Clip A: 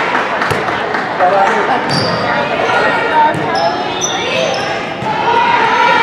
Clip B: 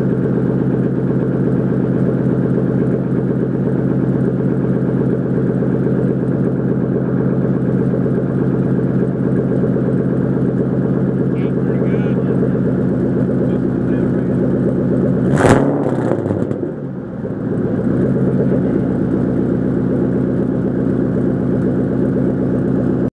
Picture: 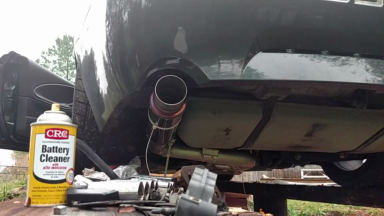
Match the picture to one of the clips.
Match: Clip B